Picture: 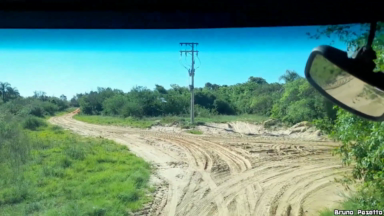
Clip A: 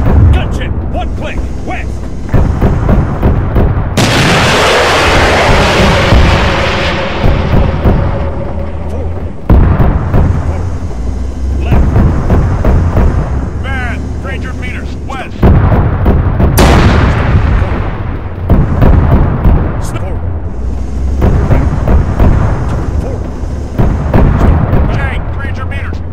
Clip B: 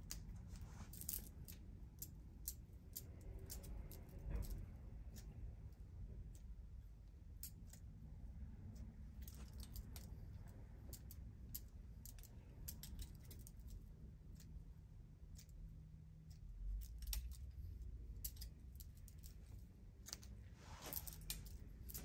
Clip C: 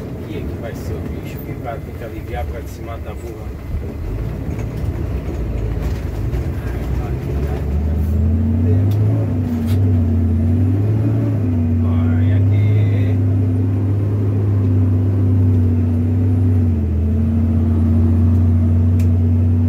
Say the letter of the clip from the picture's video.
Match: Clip C